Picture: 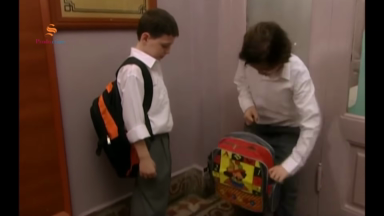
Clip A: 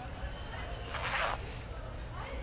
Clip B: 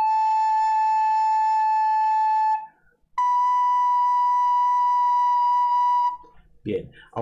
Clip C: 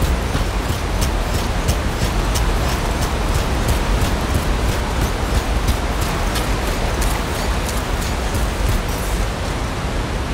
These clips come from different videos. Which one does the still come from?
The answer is A